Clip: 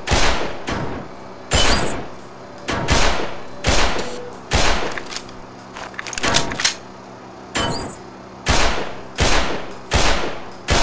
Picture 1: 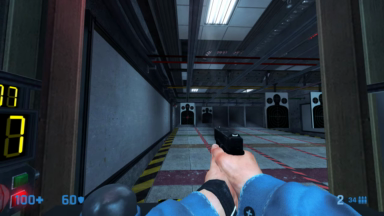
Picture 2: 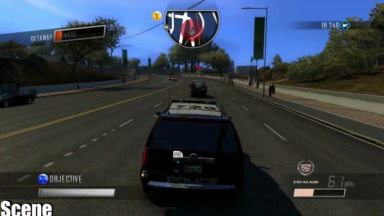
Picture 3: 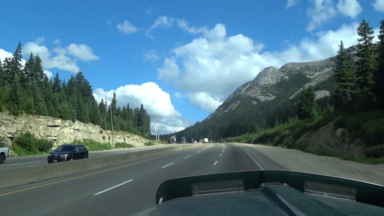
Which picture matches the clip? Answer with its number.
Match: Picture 1